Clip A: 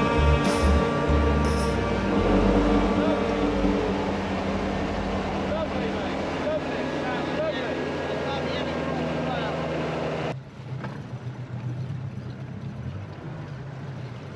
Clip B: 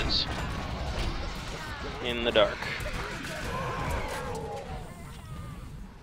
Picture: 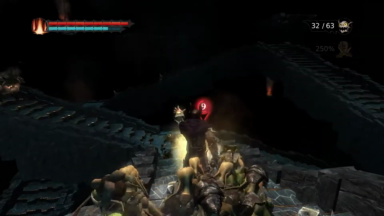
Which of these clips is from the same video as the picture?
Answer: B